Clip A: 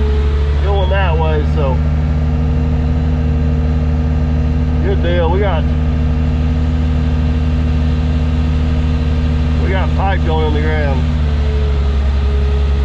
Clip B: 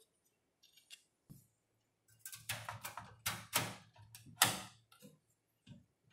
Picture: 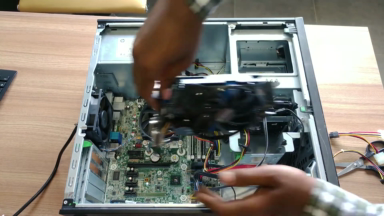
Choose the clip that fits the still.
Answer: B